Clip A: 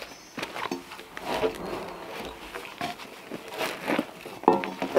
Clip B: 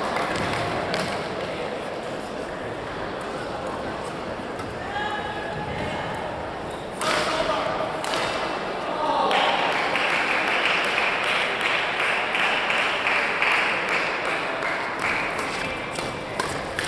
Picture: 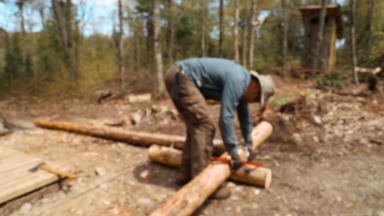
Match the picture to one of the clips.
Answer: A